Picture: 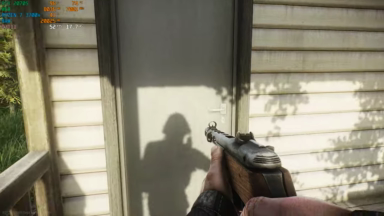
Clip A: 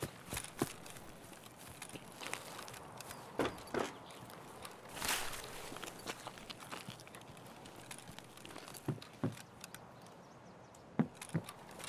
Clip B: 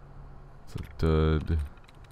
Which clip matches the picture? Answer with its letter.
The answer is A